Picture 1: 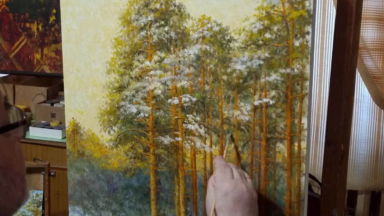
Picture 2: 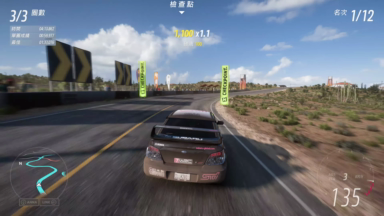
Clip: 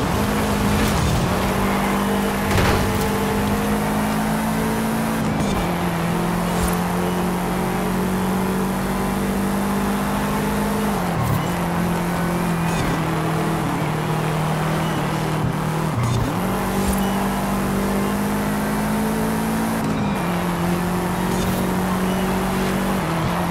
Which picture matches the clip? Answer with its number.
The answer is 2